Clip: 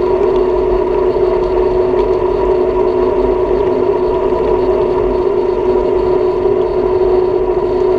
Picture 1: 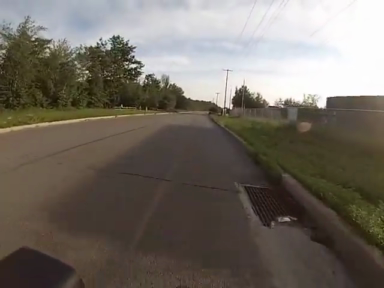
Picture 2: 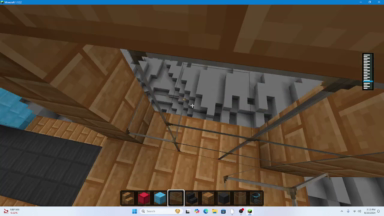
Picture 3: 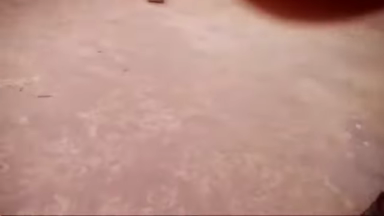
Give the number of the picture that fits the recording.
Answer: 1